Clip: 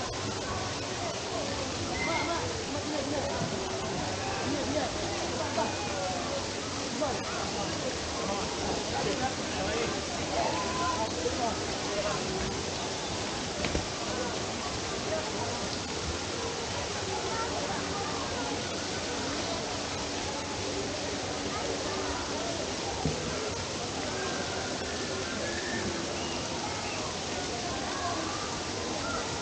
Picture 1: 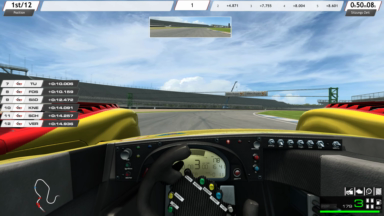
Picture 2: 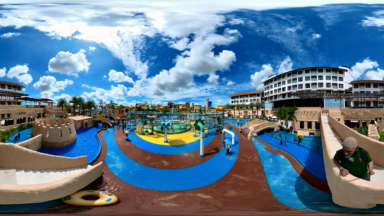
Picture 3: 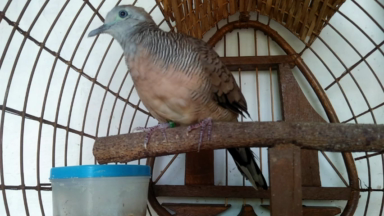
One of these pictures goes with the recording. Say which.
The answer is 2